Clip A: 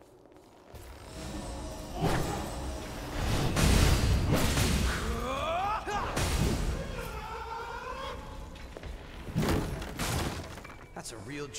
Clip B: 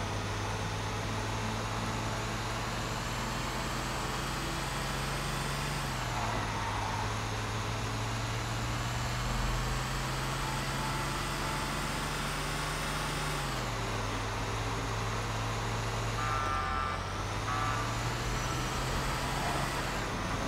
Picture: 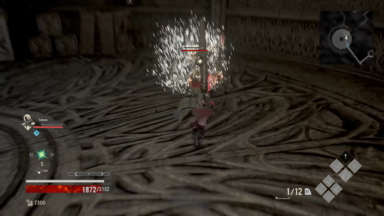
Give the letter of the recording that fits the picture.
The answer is A